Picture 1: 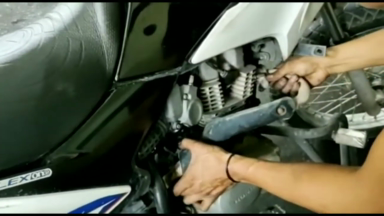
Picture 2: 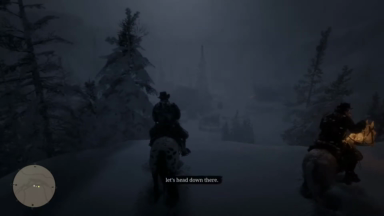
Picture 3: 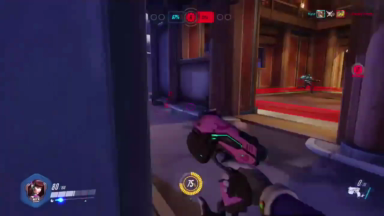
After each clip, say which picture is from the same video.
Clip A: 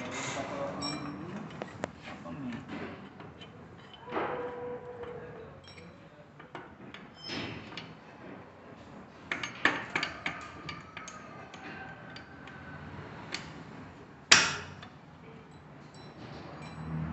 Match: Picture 1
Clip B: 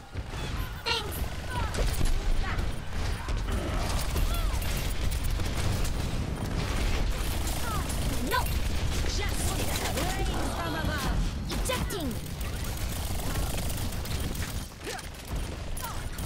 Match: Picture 3